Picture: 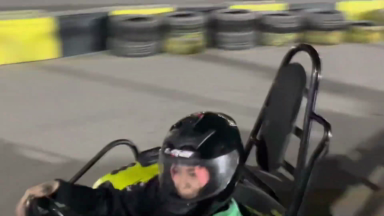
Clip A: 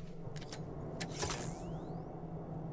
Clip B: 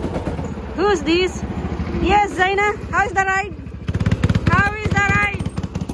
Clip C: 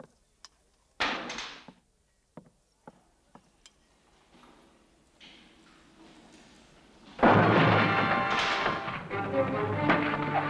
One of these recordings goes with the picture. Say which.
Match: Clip B